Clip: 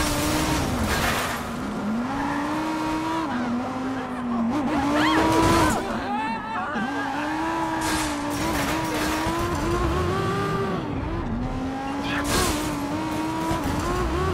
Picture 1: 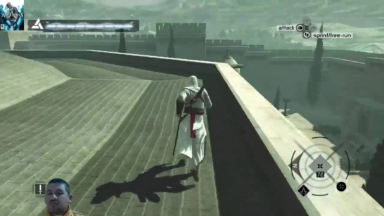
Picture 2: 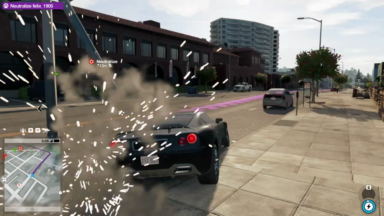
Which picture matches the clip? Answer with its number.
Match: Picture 2